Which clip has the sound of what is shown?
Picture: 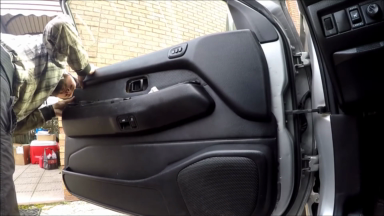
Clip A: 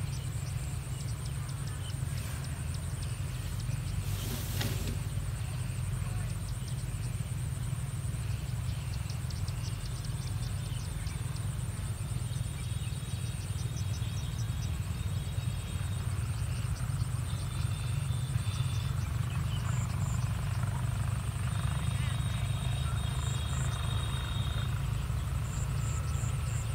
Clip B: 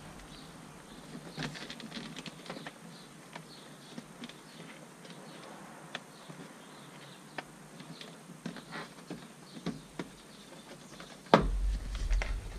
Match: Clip B